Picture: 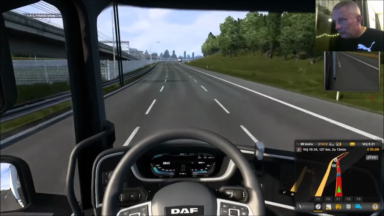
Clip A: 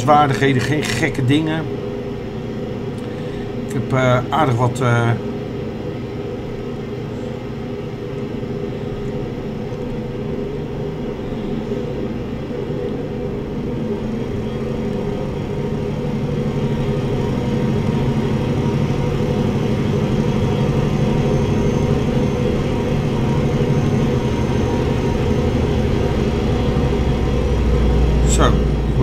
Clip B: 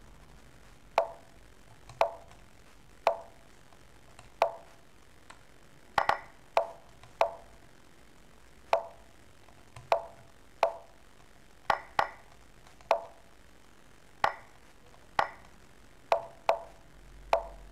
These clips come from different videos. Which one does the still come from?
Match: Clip A